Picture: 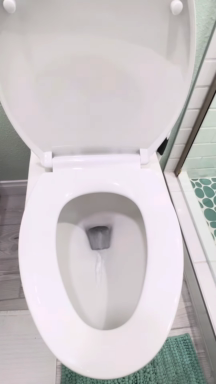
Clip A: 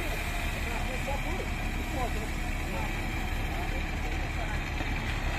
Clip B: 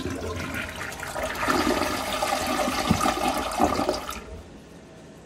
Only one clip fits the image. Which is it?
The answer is B